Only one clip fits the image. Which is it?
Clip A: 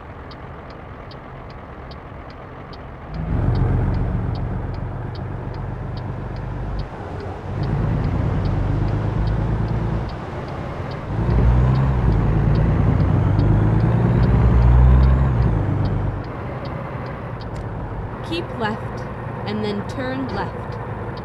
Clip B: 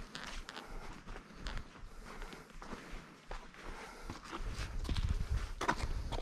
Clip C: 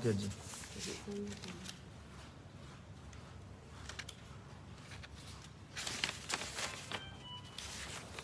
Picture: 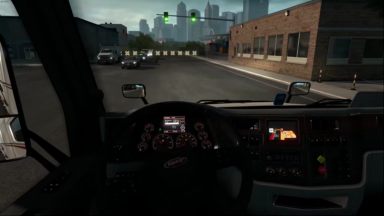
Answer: A